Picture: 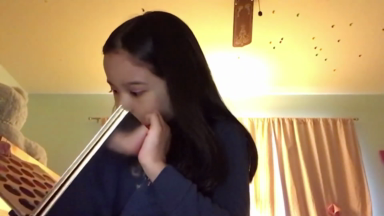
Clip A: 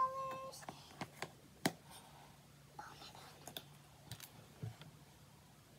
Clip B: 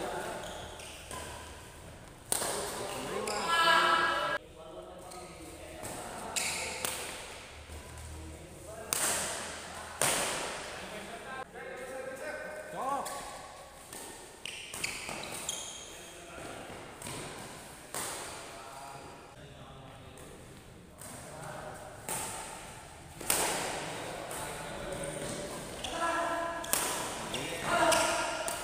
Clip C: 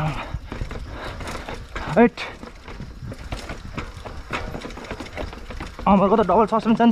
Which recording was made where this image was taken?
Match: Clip A